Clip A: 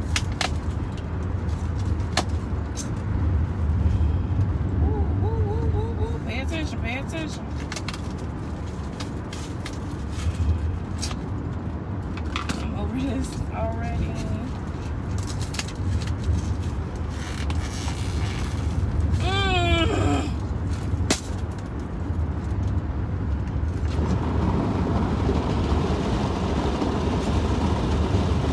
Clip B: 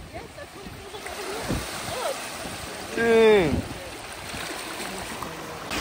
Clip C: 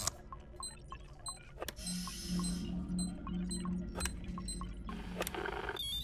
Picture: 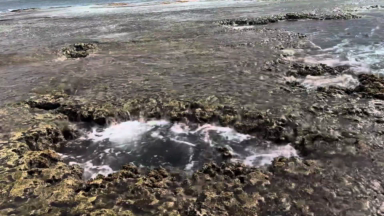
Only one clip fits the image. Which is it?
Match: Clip B